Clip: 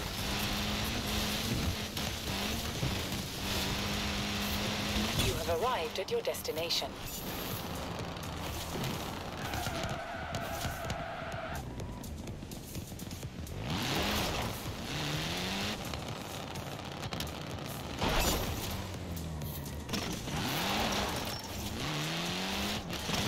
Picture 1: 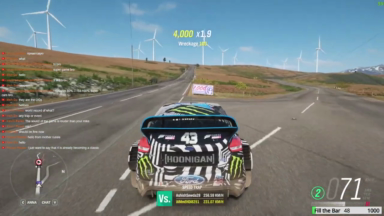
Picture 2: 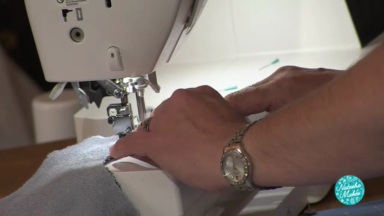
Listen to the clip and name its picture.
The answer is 1